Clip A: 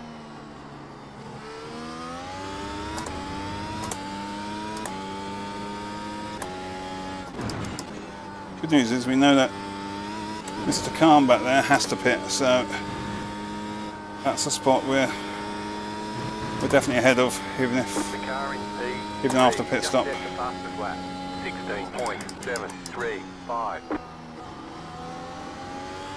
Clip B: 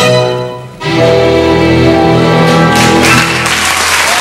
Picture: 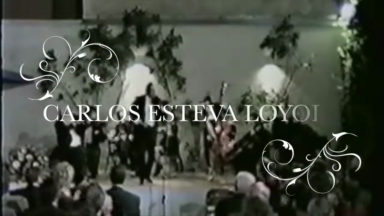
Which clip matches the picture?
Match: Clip B